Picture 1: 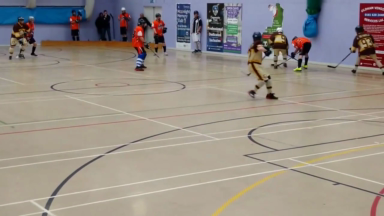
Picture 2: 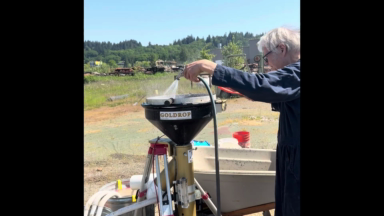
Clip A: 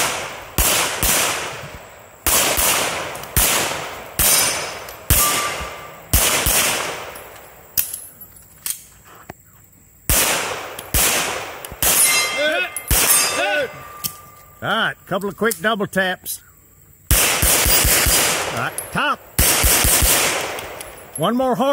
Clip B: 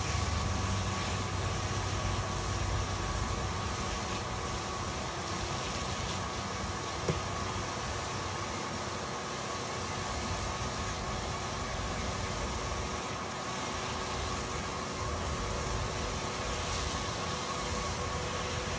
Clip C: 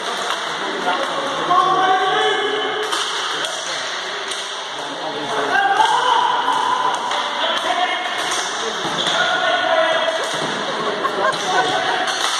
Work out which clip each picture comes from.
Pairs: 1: C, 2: B